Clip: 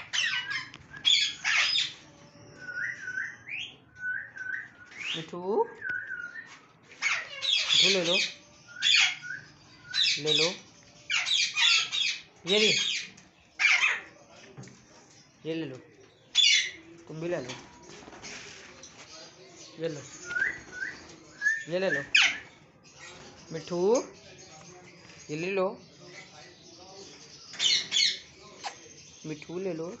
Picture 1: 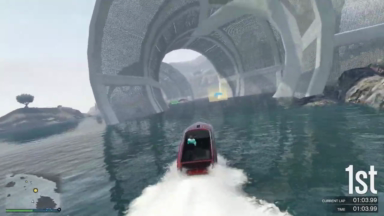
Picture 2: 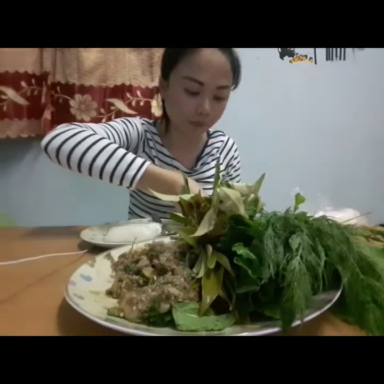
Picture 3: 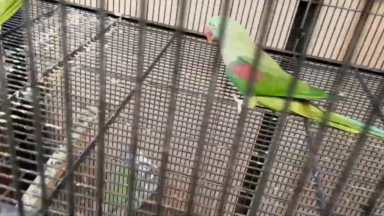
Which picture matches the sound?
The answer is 3